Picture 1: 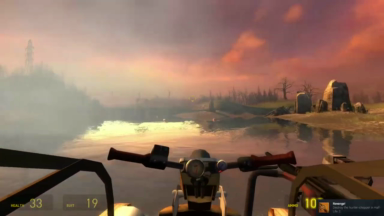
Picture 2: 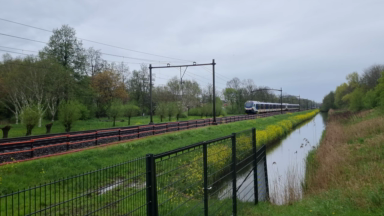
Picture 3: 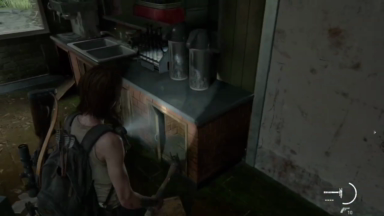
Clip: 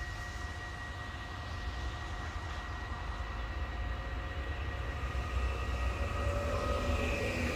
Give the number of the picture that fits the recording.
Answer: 2